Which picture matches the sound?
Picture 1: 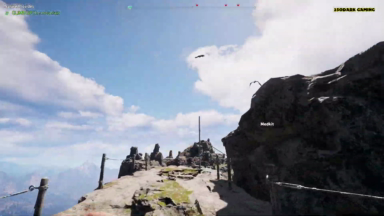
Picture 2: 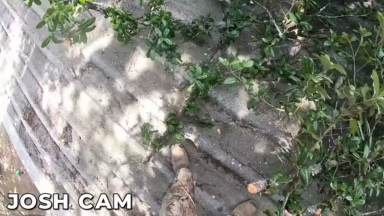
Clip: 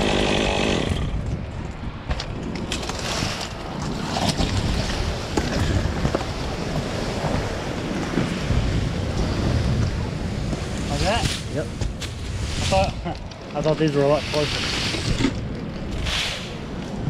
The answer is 2